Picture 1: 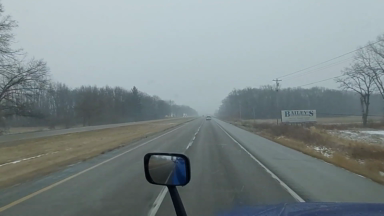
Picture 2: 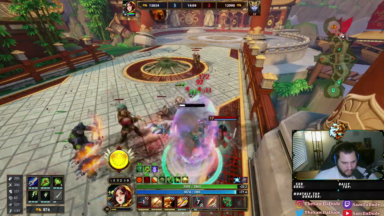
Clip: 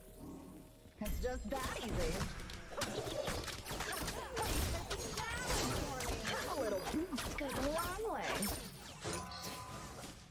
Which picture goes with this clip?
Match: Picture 2